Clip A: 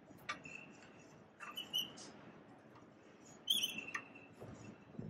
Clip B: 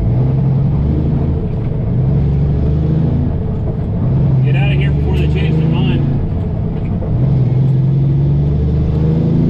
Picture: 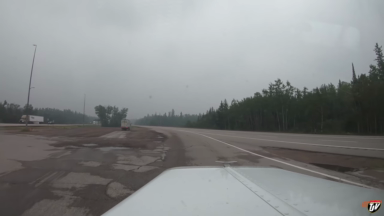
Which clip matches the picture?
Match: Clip B